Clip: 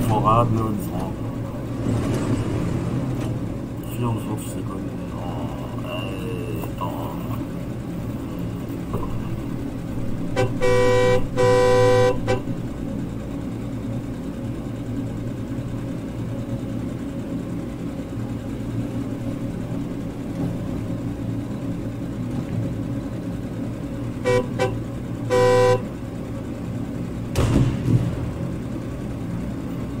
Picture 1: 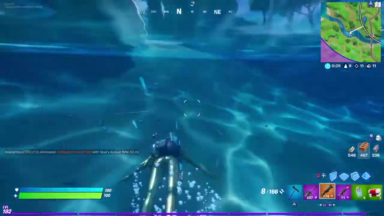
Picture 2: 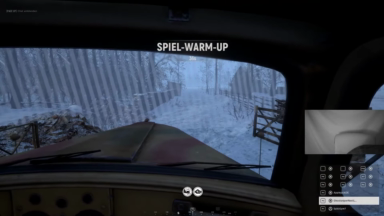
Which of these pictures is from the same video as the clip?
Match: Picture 2